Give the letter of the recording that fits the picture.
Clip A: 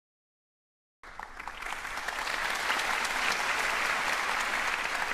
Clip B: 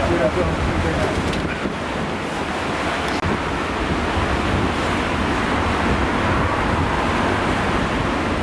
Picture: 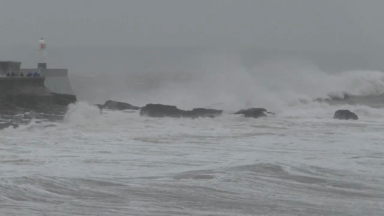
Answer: B